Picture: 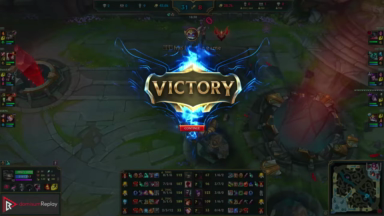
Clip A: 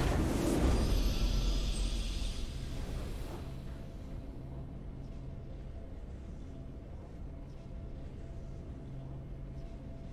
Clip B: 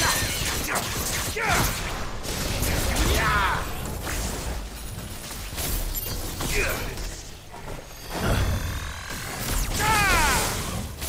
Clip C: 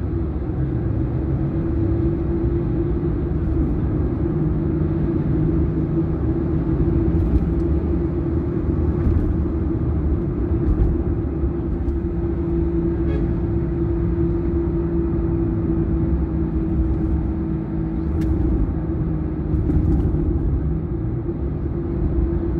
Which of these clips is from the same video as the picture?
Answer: A